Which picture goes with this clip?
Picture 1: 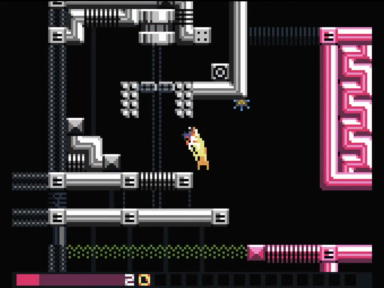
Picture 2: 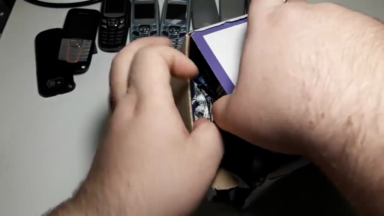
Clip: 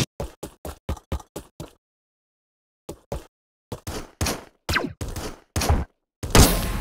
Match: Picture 1